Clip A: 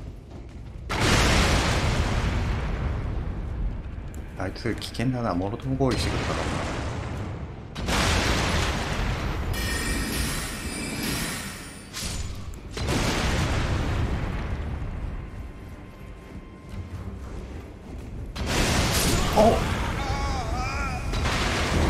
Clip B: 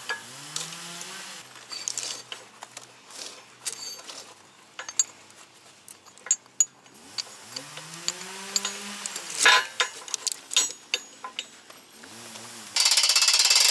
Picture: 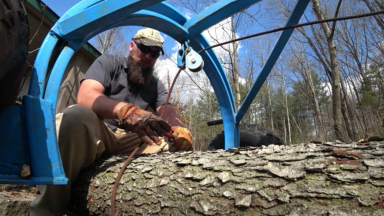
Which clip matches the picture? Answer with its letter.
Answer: B